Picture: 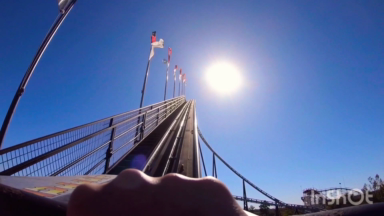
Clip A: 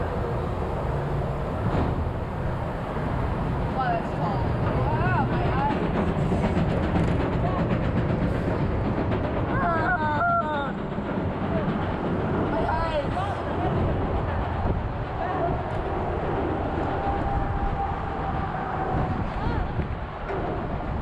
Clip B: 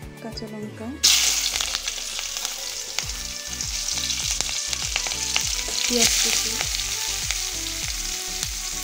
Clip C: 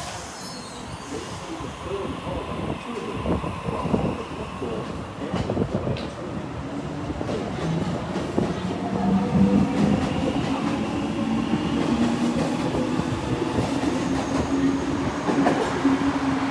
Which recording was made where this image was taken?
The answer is A